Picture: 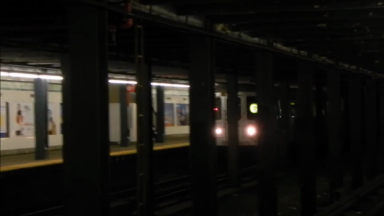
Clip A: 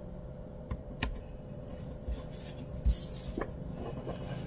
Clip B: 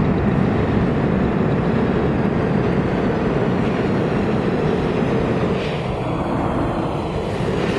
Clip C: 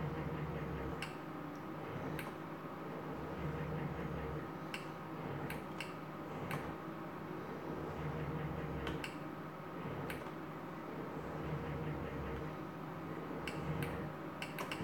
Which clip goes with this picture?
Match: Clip B